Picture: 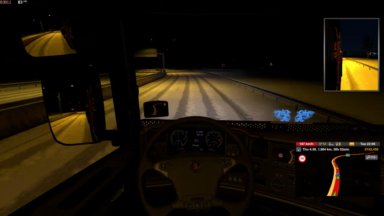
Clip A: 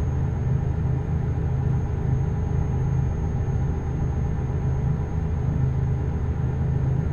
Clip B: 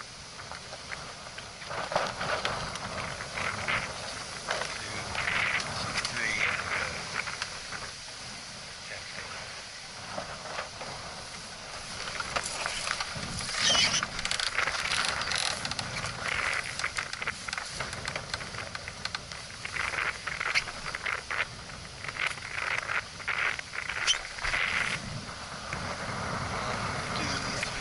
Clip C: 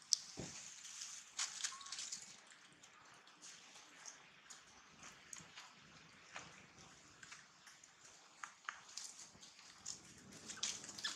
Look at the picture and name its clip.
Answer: A